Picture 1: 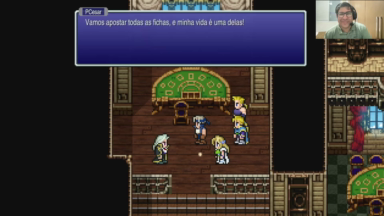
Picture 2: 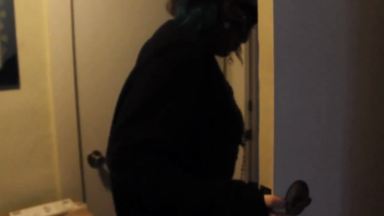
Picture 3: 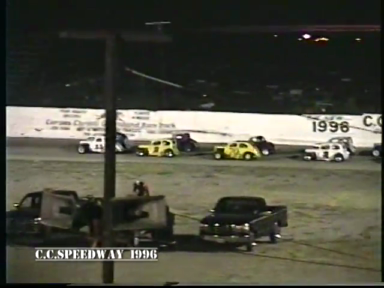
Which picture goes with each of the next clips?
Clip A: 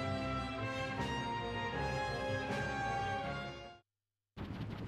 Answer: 1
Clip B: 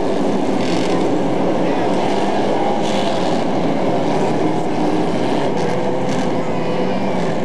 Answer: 3